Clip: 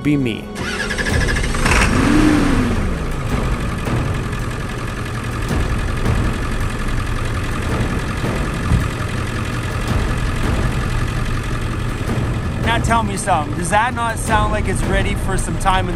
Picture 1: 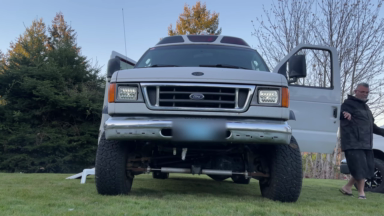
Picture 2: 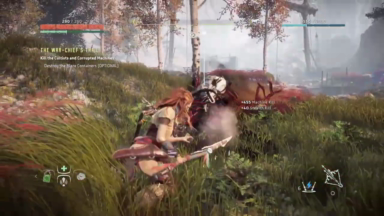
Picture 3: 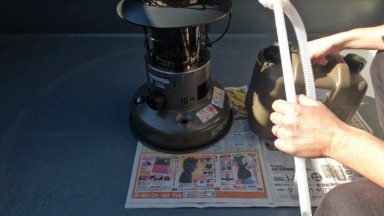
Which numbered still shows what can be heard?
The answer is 1